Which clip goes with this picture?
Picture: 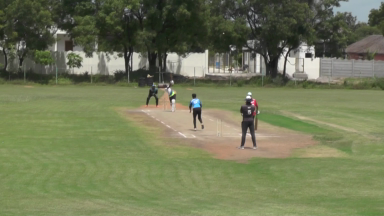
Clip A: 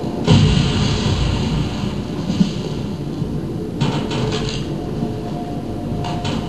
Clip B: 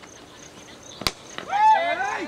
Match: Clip B